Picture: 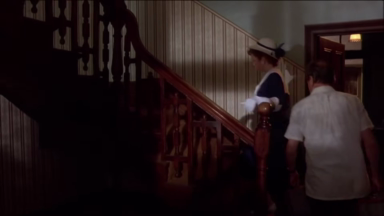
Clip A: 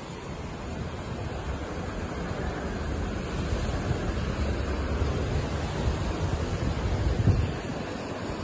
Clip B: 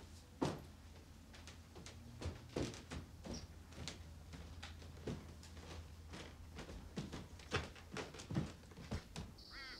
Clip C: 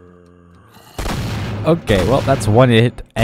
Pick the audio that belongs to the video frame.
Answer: B